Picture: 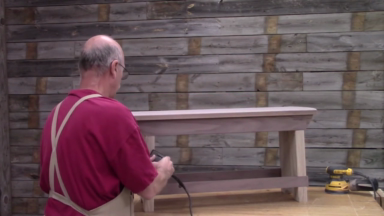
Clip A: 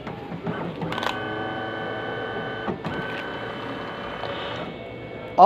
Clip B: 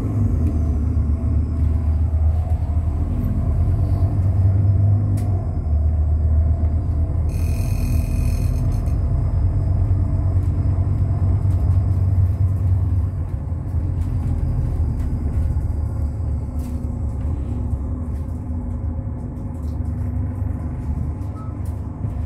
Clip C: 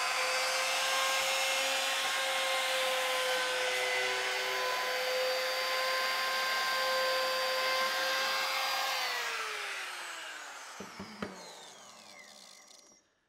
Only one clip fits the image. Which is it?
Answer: C